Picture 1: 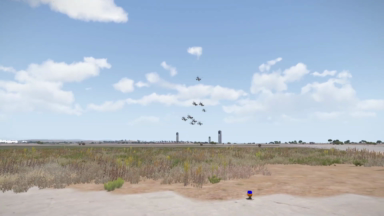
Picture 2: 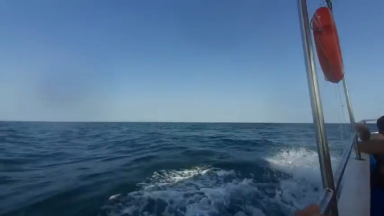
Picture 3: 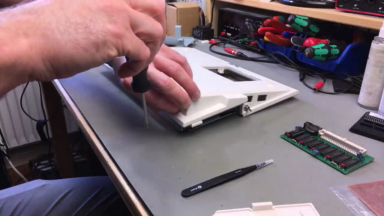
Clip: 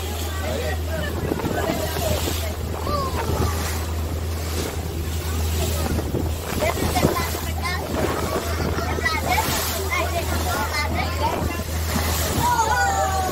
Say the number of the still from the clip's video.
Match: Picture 2